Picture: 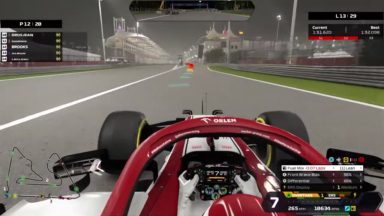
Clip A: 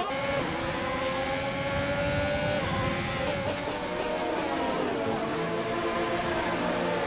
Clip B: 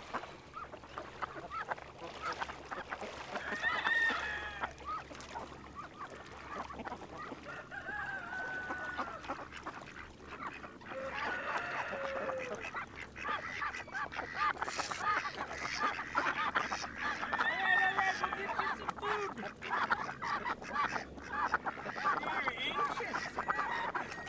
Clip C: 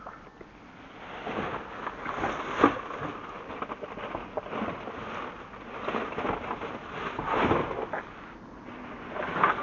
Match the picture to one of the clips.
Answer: A